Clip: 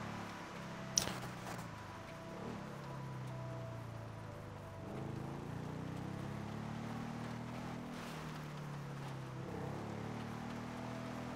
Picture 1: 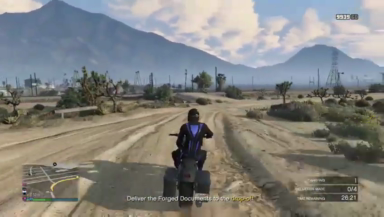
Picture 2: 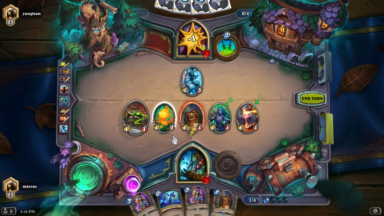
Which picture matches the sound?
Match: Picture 1